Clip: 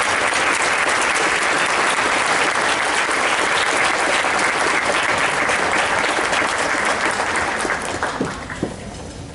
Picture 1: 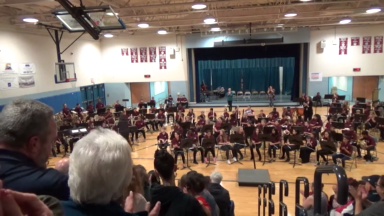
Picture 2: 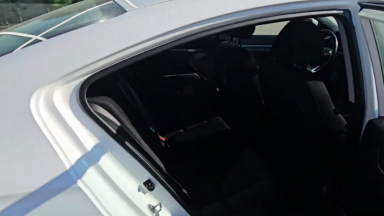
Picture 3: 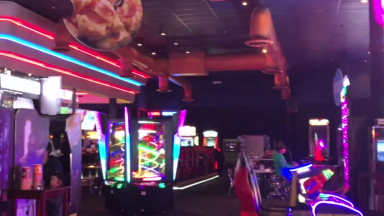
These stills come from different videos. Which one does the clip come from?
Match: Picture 1